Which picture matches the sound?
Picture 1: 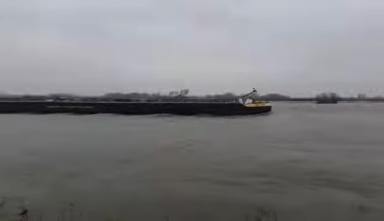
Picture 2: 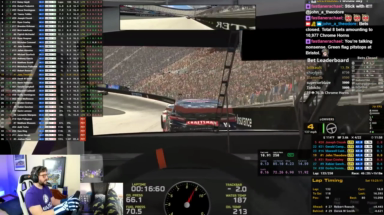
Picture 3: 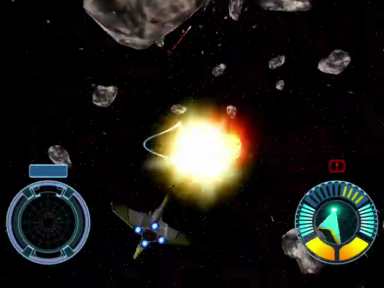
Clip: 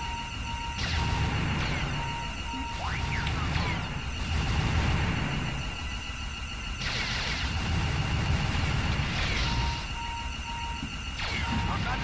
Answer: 3